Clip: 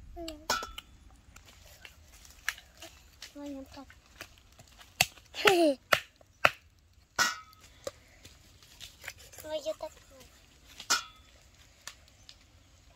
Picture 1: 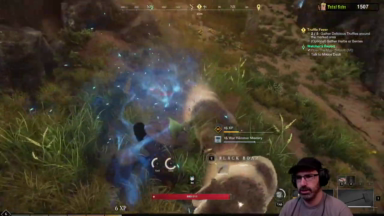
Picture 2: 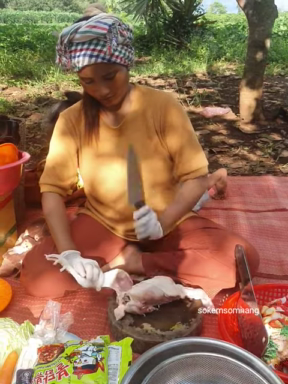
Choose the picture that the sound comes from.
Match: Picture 2